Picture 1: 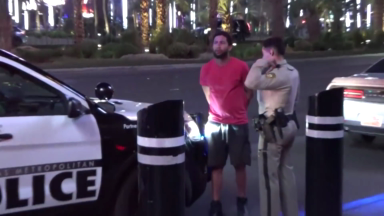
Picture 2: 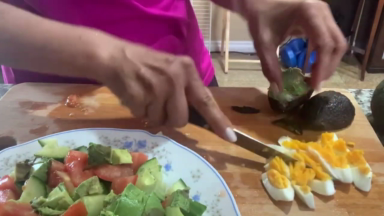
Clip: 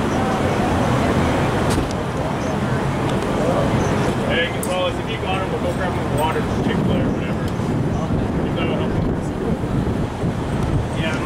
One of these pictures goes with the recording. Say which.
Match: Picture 1